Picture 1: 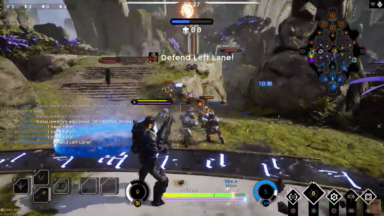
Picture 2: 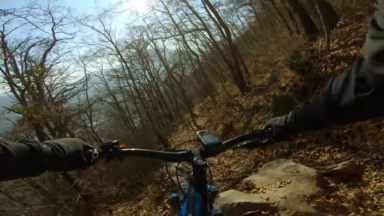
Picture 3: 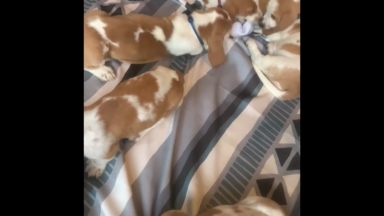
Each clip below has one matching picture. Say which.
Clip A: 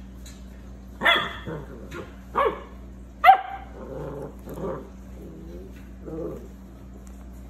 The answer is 3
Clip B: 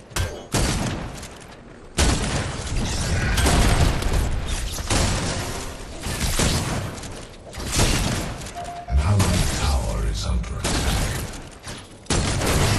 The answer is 1